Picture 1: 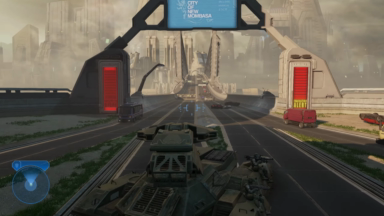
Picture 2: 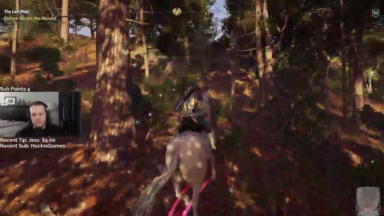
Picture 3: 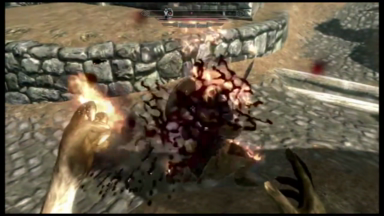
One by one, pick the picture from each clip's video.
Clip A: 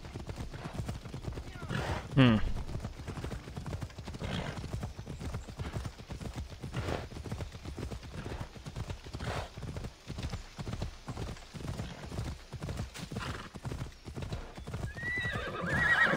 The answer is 2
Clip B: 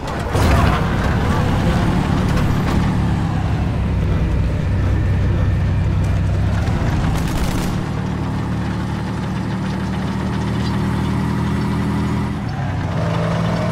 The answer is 1